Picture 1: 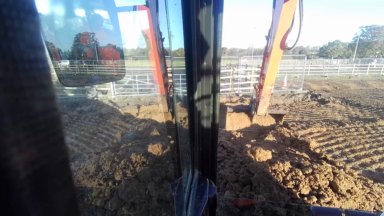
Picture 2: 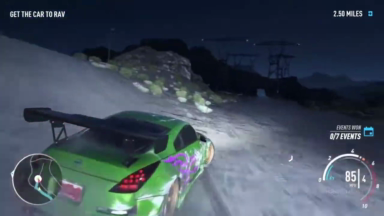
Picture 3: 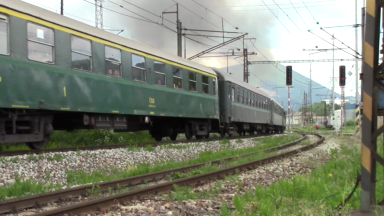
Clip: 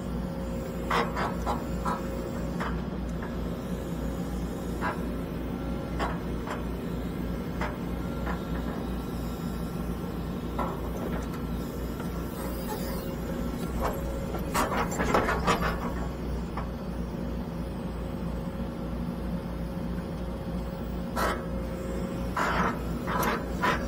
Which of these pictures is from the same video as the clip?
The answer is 1